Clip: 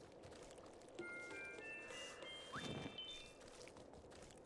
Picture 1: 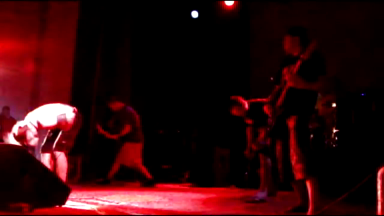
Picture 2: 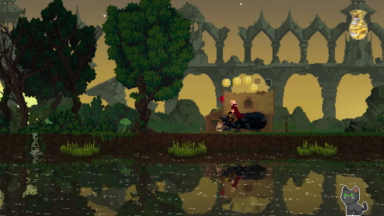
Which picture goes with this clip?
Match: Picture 2